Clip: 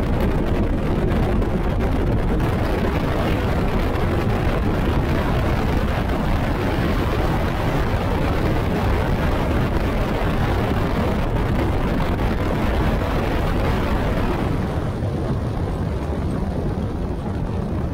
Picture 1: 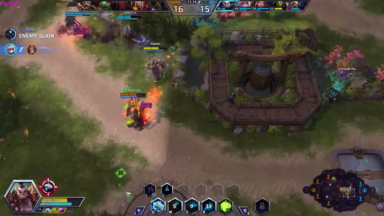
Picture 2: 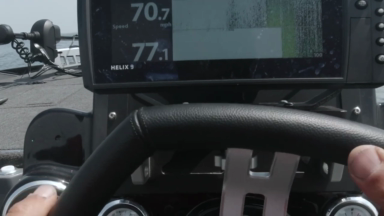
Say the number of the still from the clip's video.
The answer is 2